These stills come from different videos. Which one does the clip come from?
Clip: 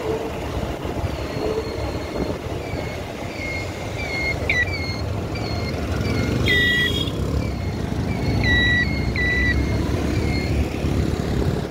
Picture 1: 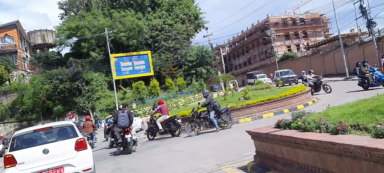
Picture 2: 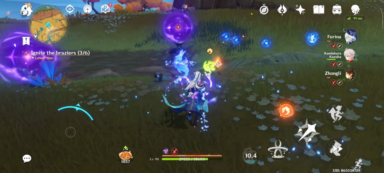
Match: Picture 1